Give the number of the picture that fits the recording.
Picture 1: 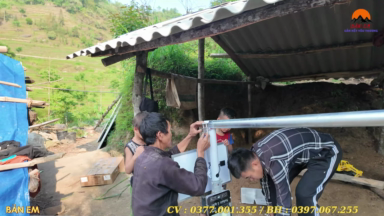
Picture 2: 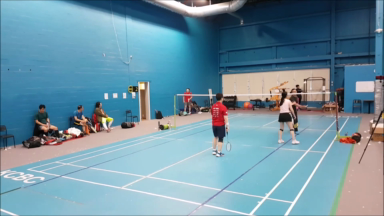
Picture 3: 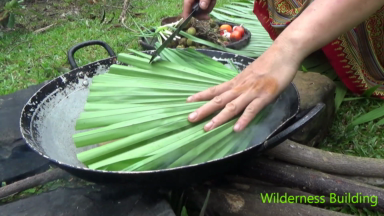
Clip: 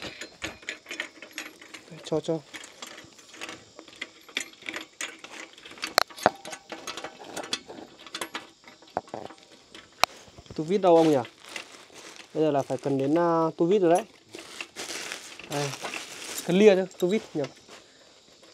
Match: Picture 1